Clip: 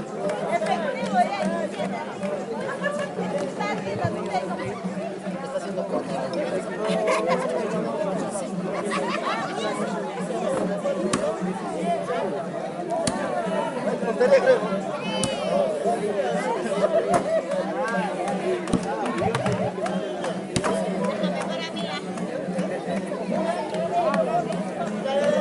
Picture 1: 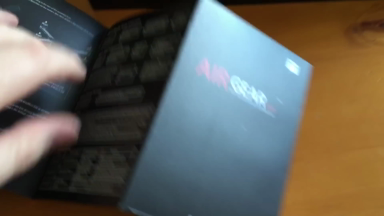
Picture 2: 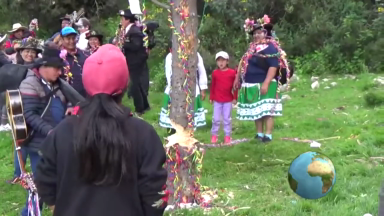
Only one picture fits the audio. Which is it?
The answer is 2